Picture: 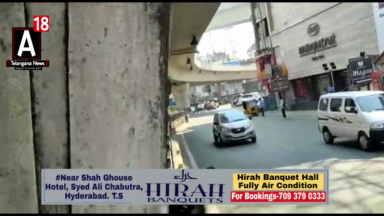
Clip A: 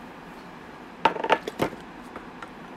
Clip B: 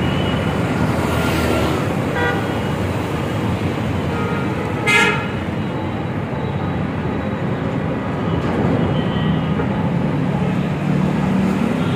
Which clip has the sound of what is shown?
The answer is B